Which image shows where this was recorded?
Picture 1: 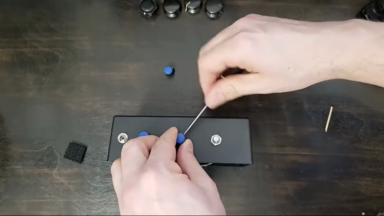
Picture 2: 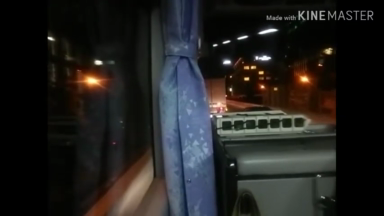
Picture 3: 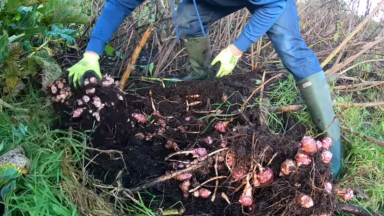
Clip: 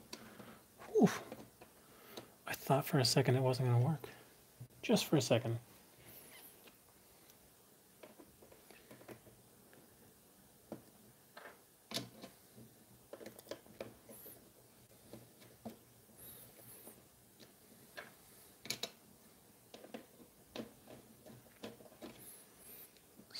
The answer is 1